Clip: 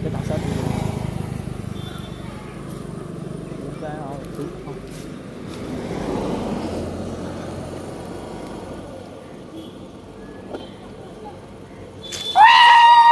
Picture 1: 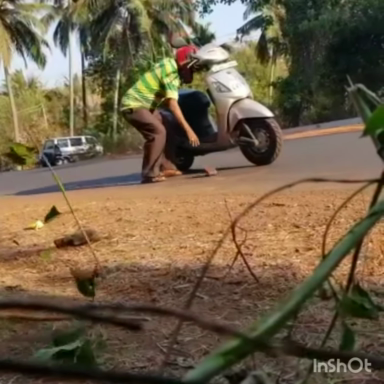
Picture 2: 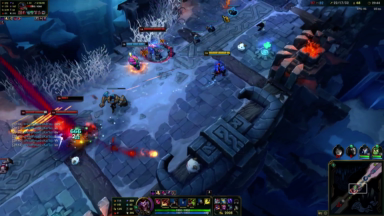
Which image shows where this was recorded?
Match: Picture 1